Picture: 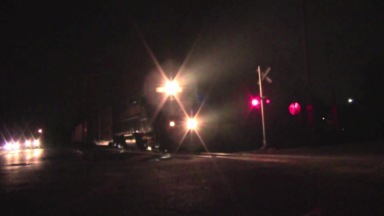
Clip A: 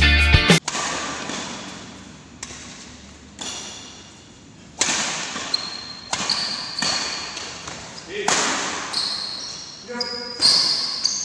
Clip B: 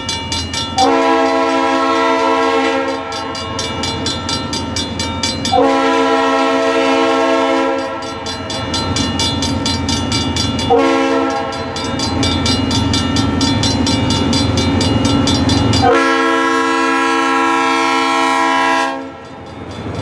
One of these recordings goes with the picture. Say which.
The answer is B